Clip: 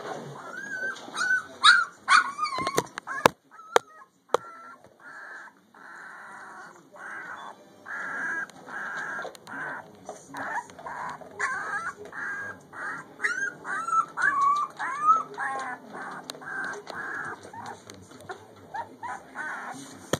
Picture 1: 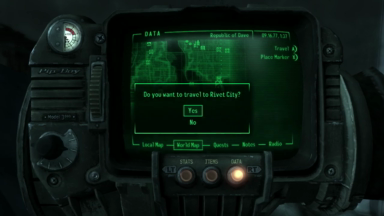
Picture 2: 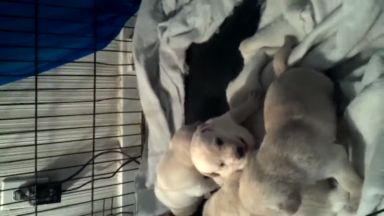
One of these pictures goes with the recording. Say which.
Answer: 2